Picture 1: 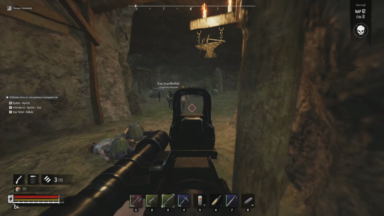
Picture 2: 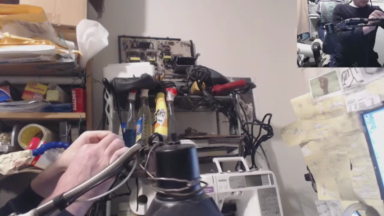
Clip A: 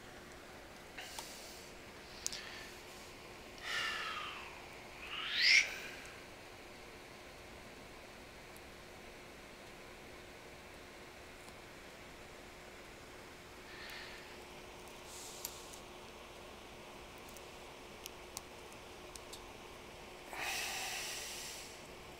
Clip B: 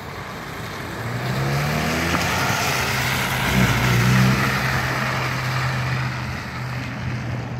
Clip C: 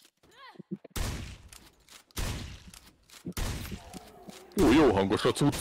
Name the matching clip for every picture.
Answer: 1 C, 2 A